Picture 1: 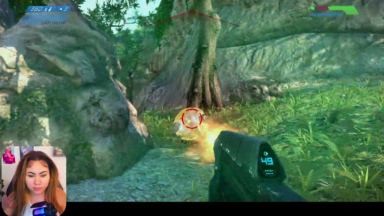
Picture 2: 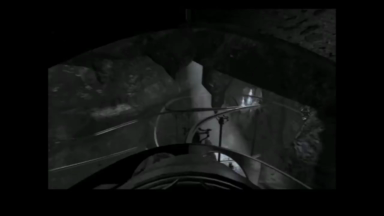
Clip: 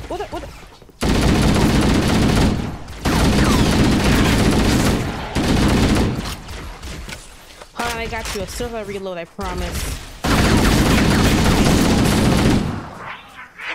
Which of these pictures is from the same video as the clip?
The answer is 1